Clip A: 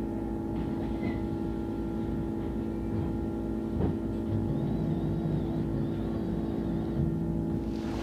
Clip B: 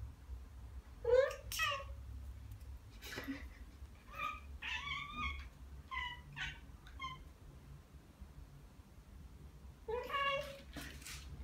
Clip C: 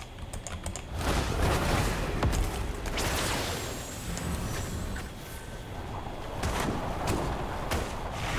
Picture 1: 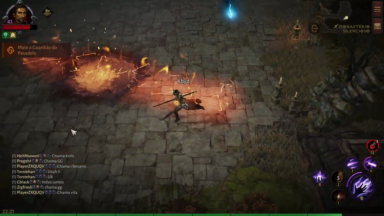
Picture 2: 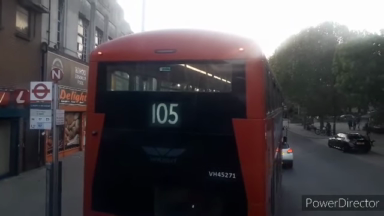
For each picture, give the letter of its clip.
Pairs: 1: C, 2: A